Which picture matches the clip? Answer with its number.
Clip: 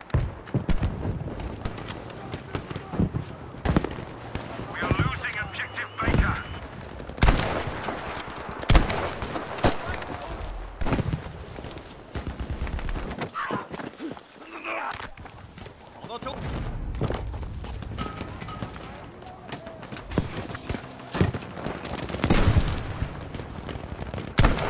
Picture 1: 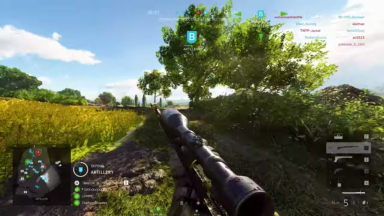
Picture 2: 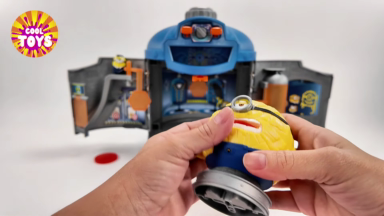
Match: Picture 1